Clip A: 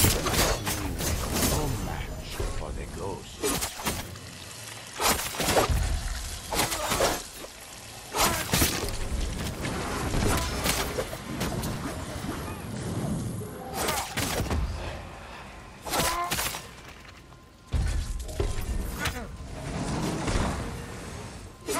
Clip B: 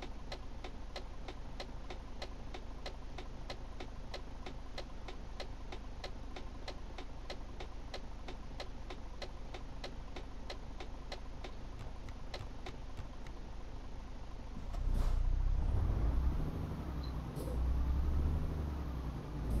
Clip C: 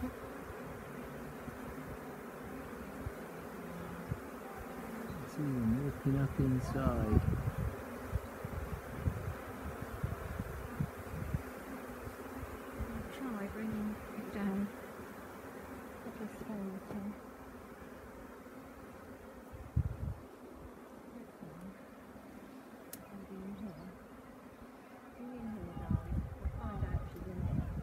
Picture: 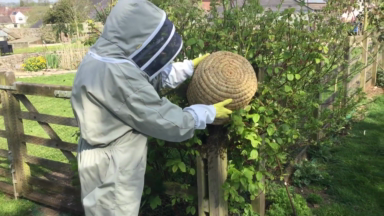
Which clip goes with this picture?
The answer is C